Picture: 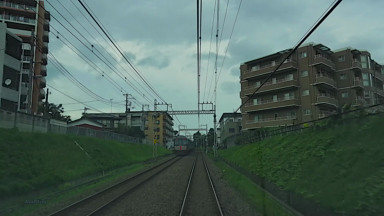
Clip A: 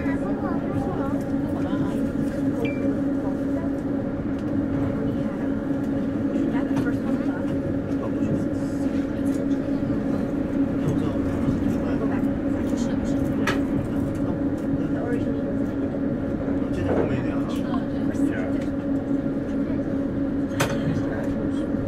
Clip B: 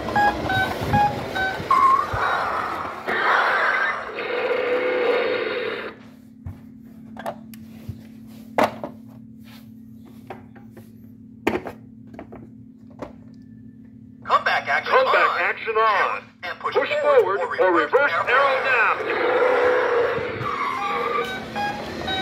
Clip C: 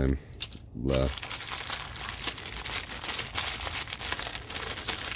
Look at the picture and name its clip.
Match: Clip A